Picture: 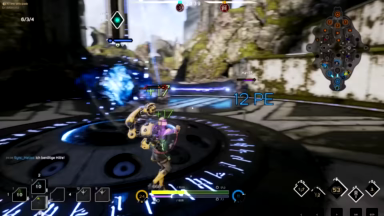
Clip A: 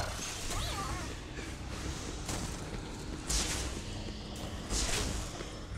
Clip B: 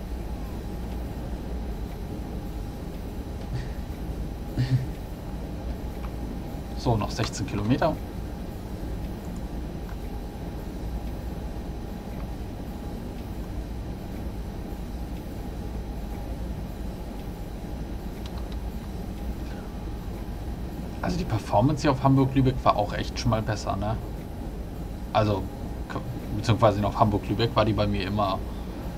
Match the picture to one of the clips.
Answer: A